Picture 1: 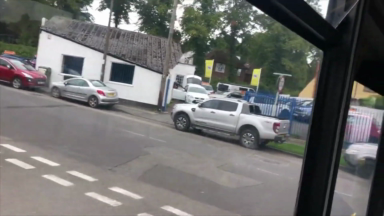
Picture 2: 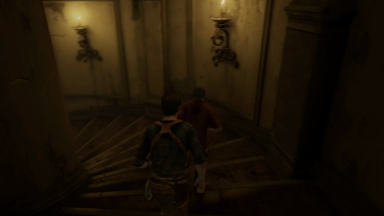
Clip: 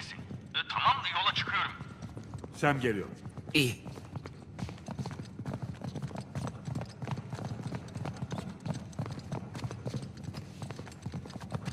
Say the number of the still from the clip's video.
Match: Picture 2